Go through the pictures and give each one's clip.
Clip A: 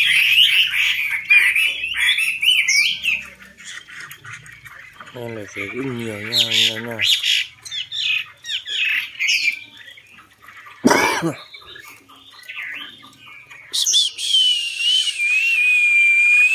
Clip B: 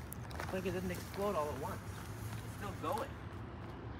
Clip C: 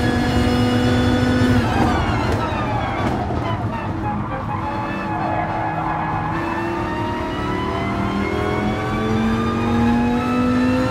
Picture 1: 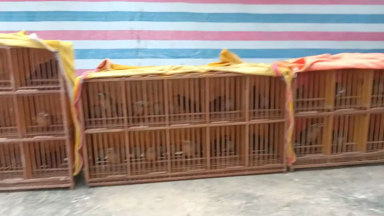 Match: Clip A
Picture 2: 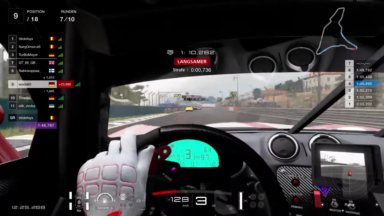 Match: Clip C